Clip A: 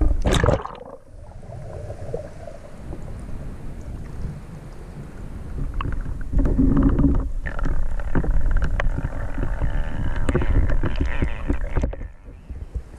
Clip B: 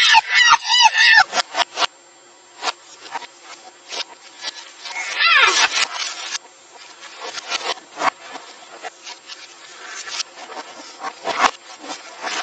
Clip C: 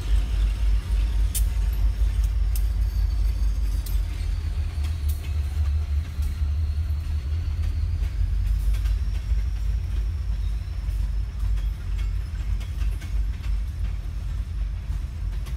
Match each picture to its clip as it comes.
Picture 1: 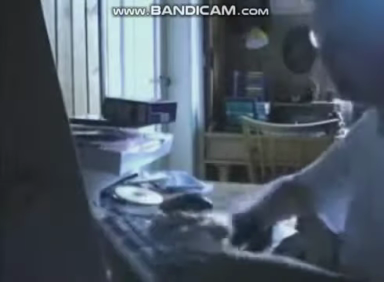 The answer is B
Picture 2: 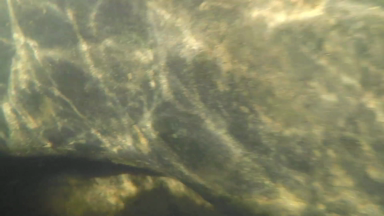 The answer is A